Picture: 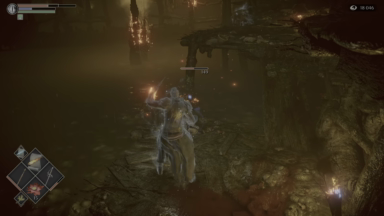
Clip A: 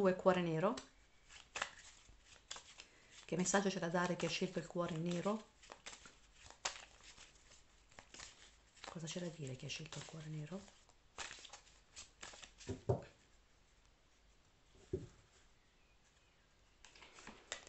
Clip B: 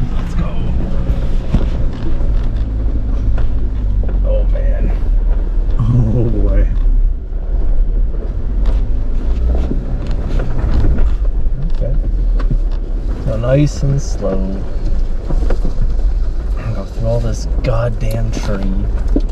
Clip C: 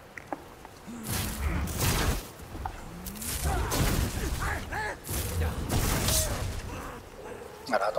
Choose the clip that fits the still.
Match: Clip C